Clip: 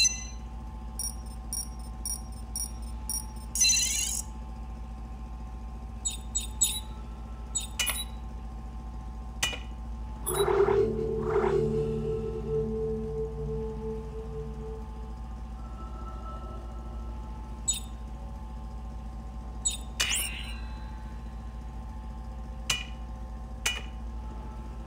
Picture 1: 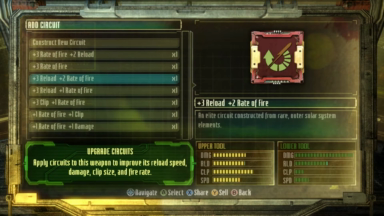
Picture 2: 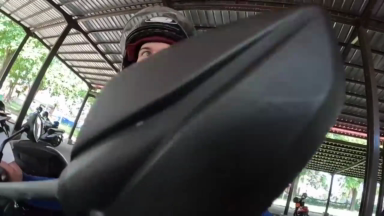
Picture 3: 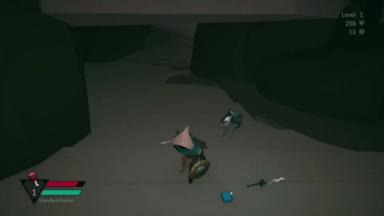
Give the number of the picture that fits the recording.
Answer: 1